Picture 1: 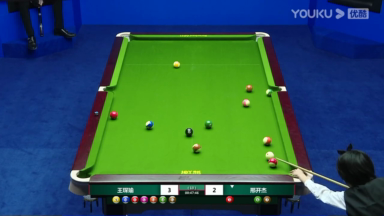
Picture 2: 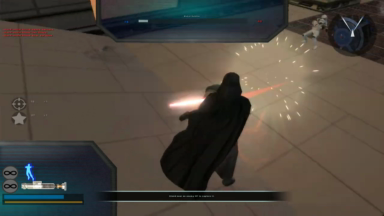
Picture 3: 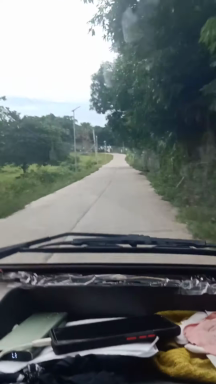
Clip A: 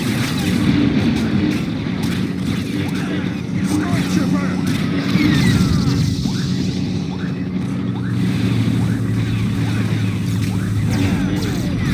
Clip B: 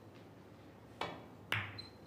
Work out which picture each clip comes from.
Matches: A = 2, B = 1